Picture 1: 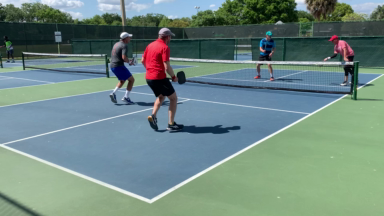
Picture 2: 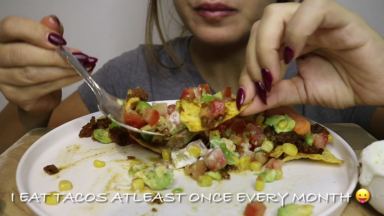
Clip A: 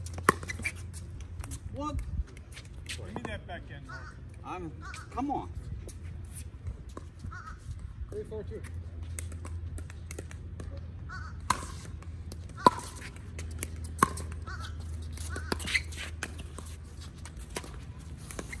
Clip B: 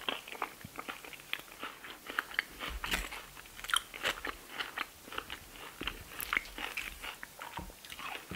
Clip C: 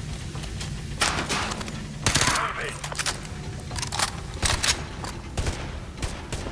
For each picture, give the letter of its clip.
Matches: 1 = A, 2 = B